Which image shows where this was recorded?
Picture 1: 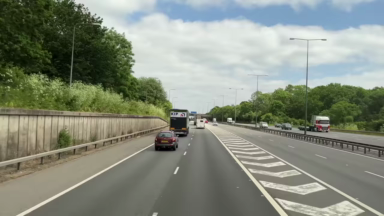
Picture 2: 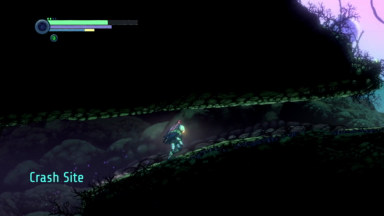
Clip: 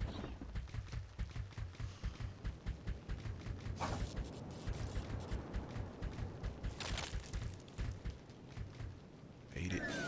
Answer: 2